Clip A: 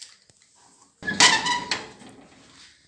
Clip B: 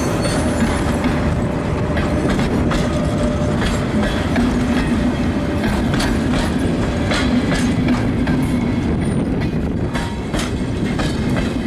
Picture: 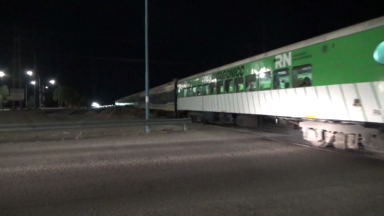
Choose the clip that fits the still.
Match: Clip B